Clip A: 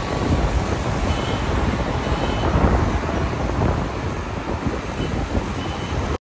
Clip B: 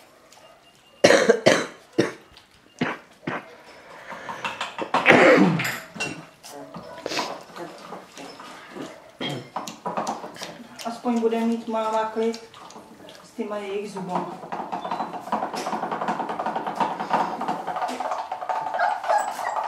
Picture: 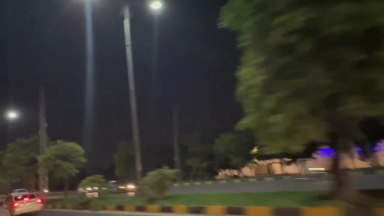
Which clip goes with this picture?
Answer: A